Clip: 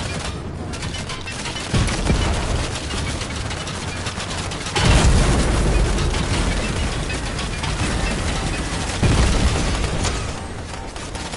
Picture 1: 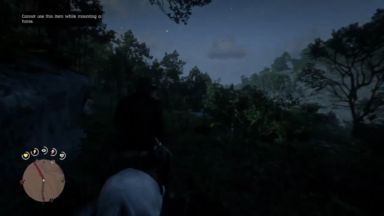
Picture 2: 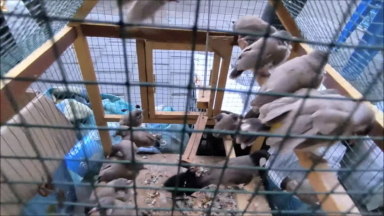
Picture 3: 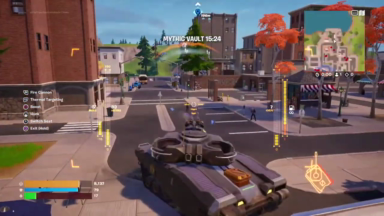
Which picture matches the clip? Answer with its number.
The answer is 3